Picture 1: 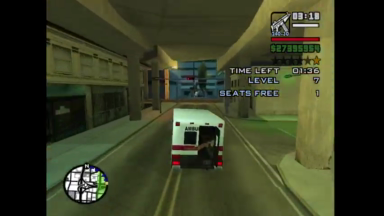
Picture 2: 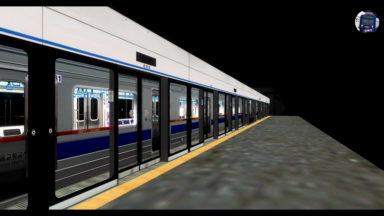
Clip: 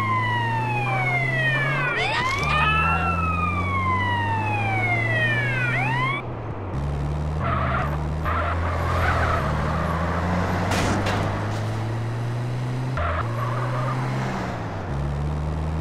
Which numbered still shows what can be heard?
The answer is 1